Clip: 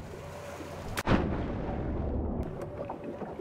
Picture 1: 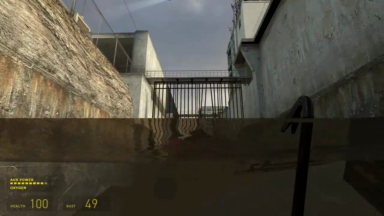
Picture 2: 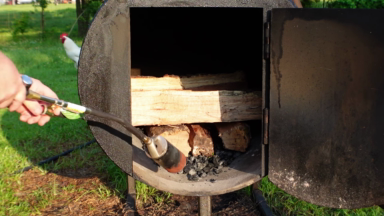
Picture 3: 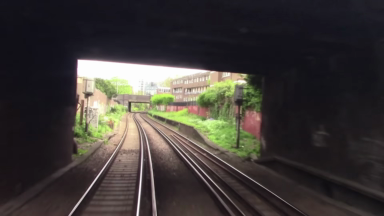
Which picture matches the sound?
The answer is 1